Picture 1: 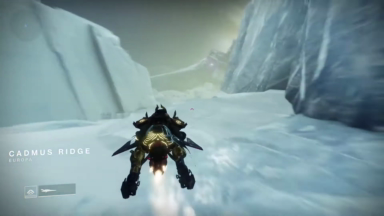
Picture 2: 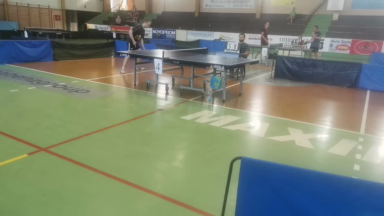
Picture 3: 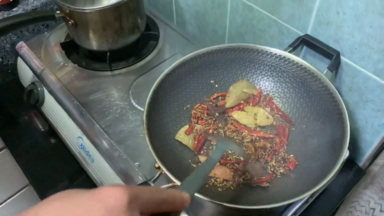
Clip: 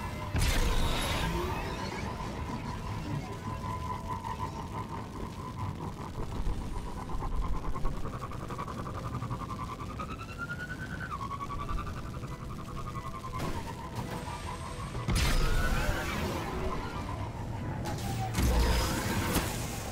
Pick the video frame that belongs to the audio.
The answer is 1